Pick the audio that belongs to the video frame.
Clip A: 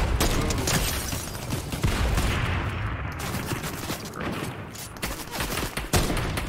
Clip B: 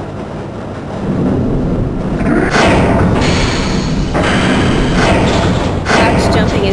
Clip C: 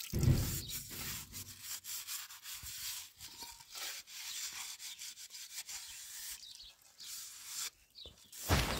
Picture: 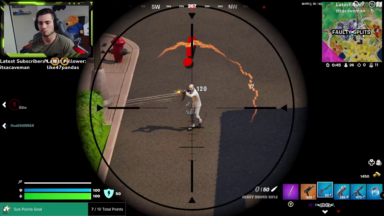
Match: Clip A